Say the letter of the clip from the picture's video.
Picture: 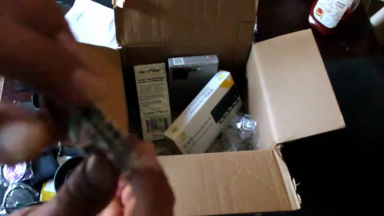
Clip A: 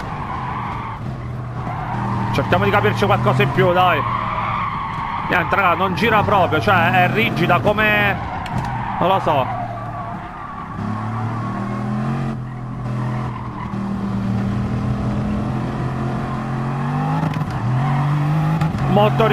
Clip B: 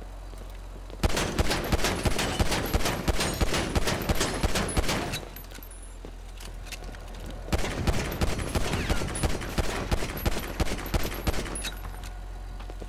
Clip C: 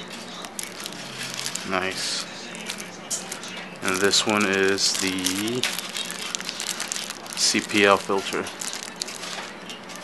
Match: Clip C